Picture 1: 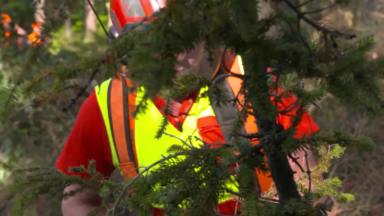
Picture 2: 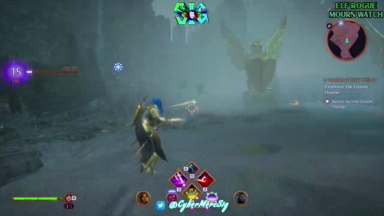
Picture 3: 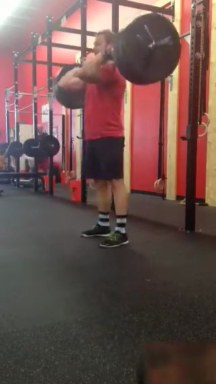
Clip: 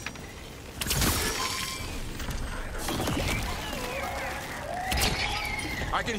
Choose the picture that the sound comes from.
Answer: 2